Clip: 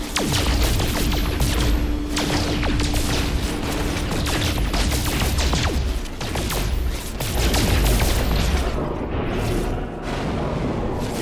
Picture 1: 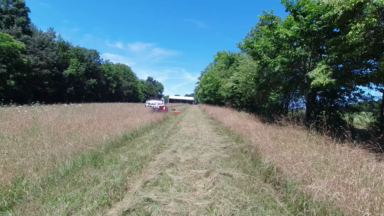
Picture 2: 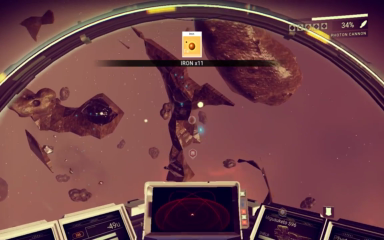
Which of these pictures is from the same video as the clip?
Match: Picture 2